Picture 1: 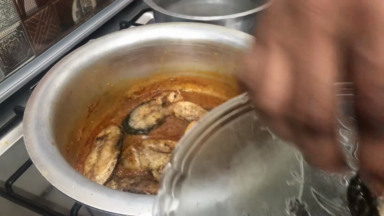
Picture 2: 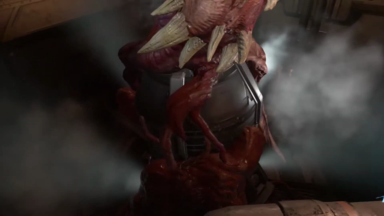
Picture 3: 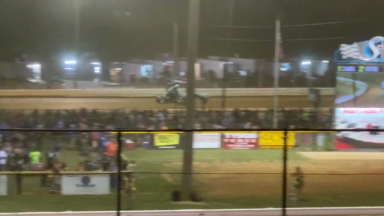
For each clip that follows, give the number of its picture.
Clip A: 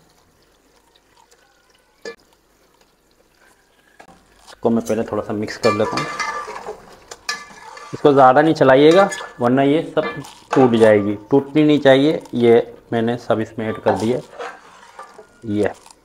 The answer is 1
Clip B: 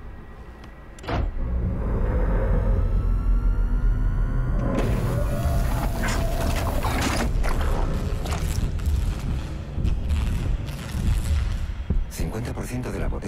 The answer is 2